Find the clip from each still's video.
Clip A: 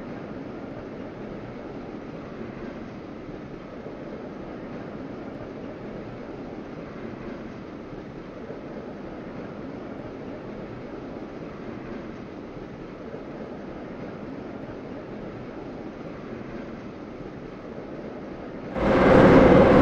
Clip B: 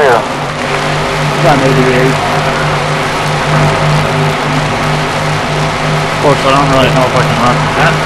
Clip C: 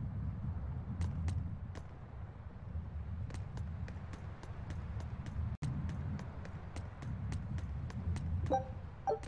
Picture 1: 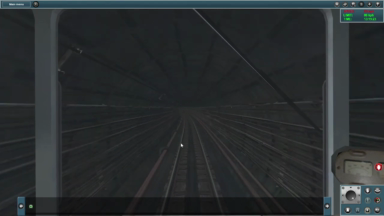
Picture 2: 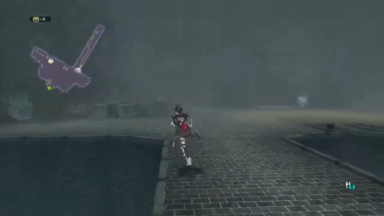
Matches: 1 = A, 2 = C